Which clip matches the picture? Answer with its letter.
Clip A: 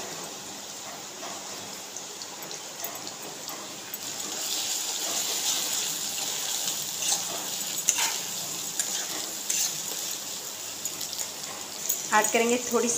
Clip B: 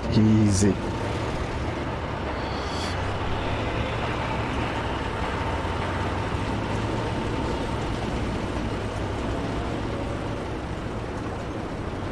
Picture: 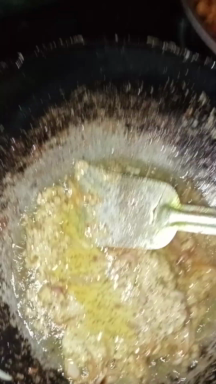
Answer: A